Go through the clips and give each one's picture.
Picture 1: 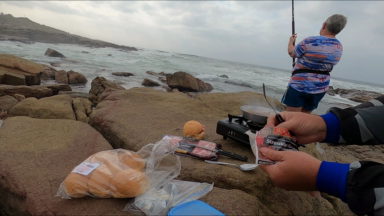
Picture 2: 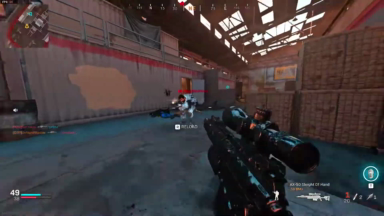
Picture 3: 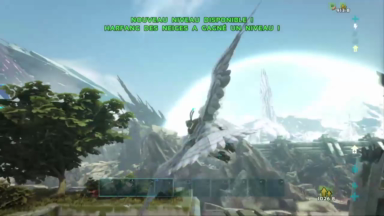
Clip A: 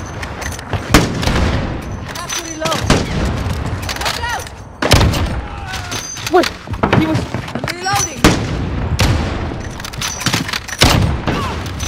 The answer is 2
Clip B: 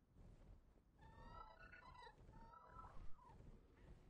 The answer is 3